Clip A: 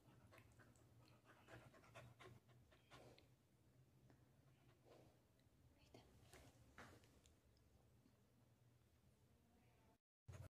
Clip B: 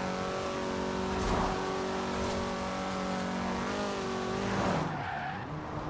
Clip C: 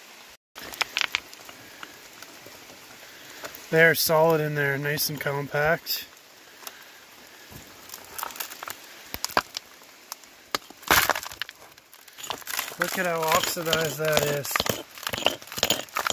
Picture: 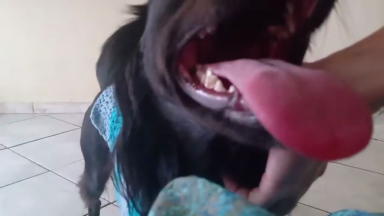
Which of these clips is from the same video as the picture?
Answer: A